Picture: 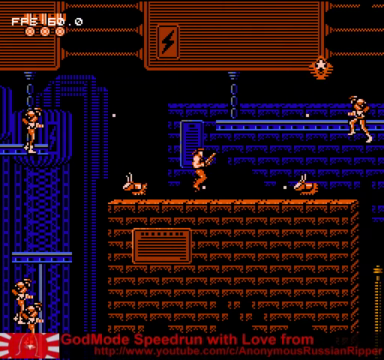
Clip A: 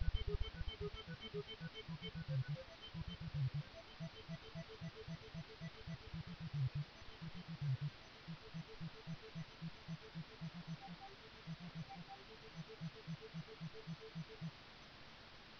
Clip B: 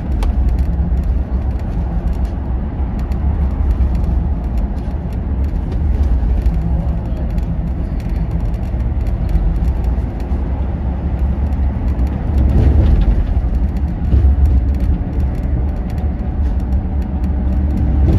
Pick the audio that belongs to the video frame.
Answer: A